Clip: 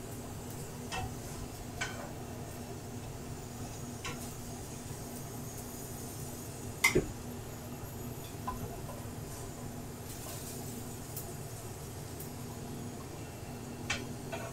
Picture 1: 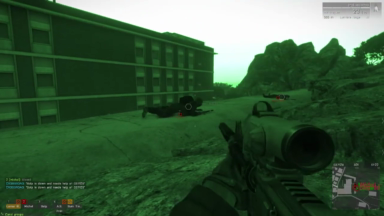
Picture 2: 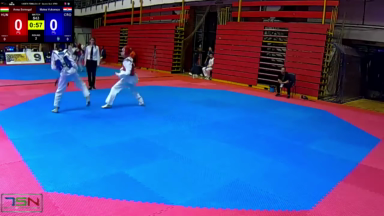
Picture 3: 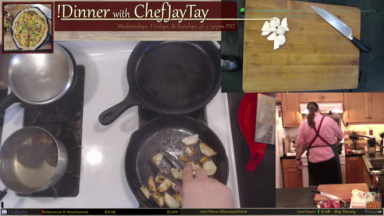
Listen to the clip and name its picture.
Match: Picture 3